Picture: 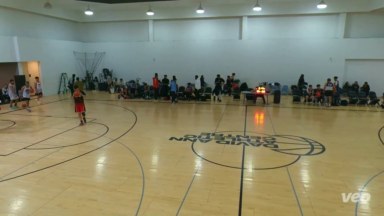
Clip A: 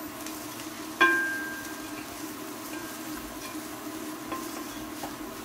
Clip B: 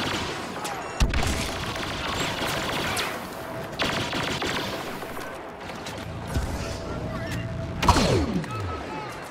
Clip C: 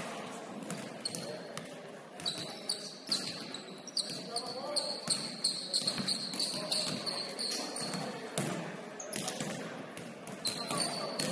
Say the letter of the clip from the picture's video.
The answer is C